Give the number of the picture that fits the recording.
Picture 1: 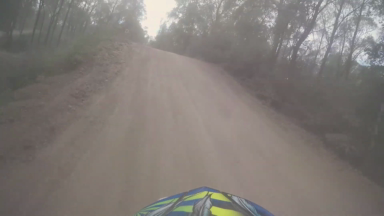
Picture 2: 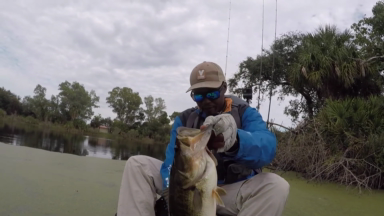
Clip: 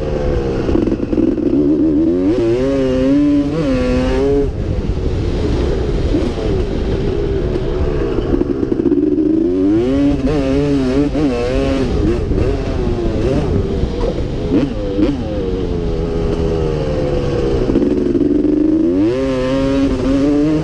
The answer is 1